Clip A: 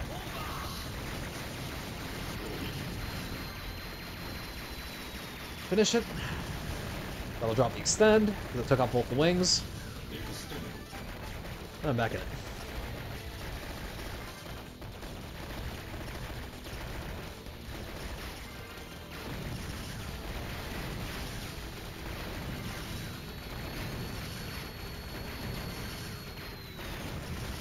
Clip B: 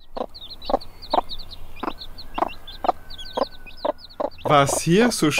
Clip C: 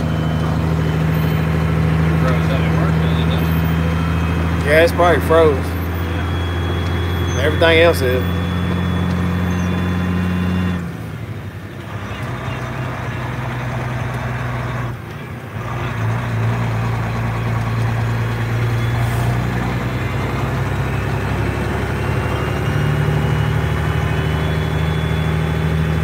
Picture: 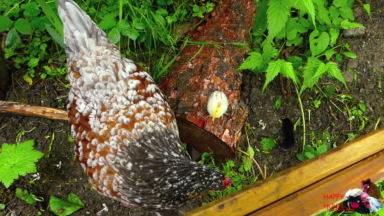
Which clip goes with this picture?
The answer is B